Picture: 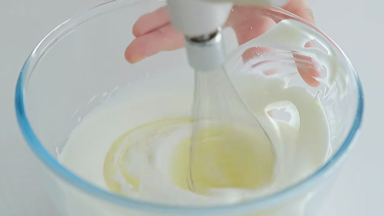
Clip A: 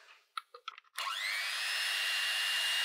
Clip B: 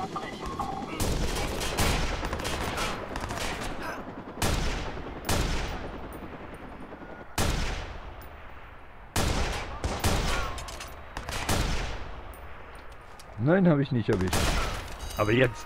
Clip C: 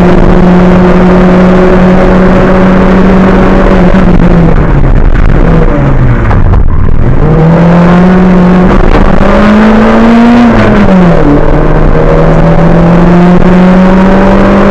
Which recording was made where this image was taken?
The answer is A